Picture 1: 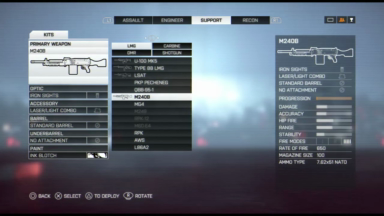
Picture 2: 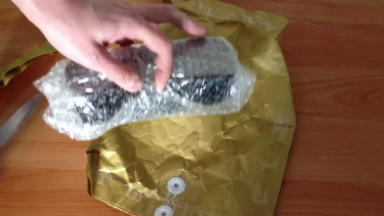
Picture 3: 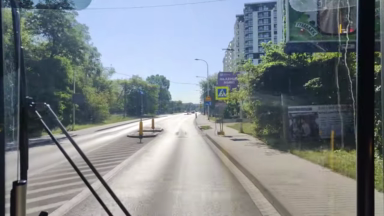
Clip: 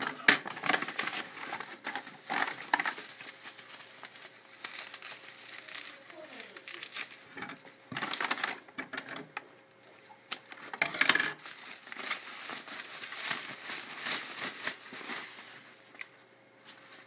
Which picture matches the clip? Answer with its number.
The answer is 2